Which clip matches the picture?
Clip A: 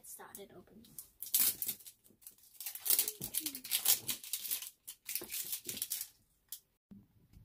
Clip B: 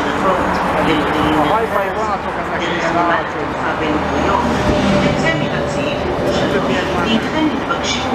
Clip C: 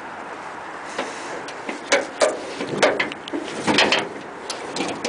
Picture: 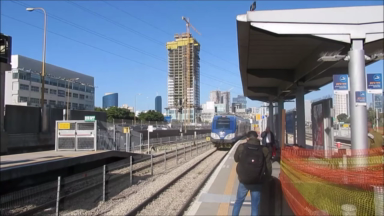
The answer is B